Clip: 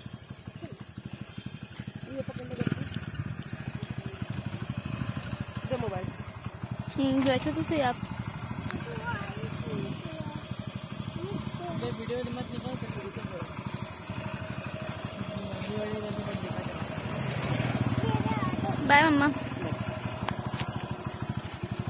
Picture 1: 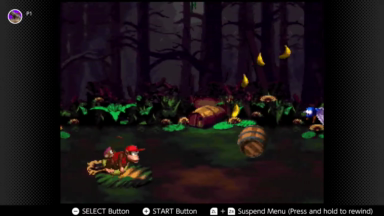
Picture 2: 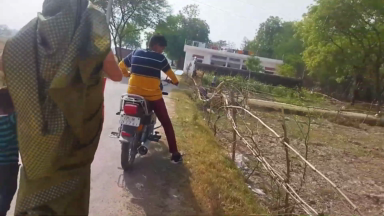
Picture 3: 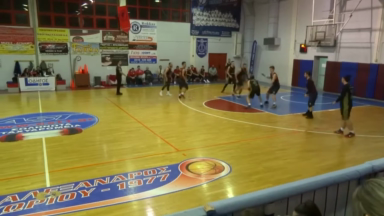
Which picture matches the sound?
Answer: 2